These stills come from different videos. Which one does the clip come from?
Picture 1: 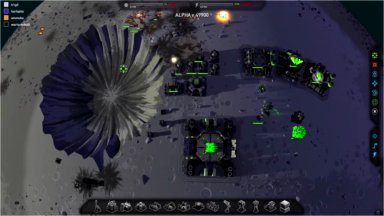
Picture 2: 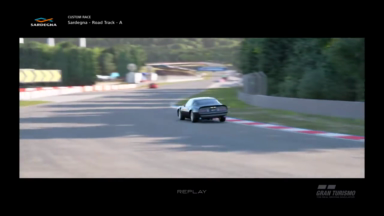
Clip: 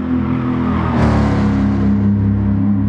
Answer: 2